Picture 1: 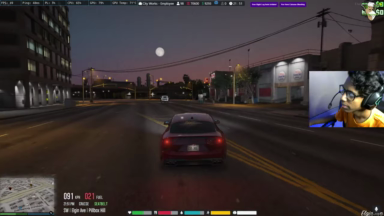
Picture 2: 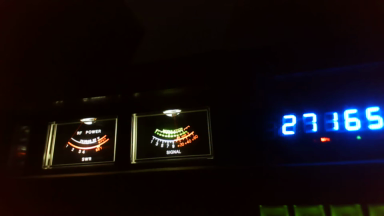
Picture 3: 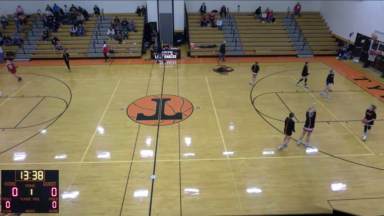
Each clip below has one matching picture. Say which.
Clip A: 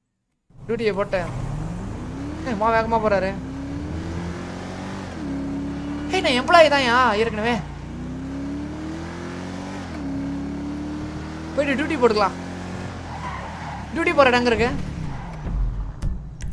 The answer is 1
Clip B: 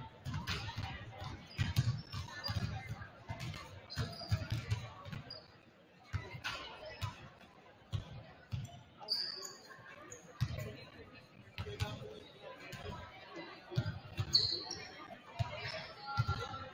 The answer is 3